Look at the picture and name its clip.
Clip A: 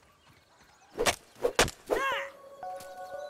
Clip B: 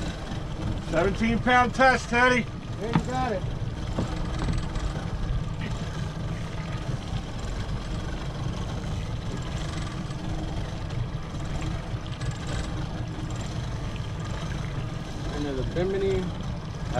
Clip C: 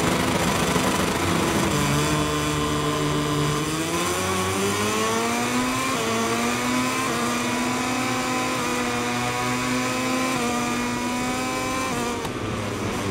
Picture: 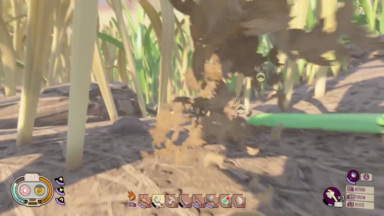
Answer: A